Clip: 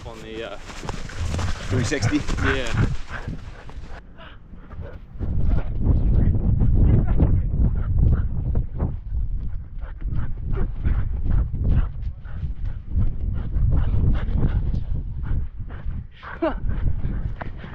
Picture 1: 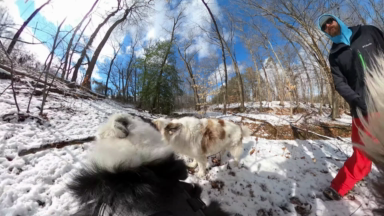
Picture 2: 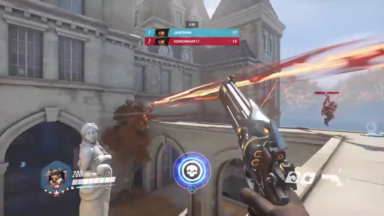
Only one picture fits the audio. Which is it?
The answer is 1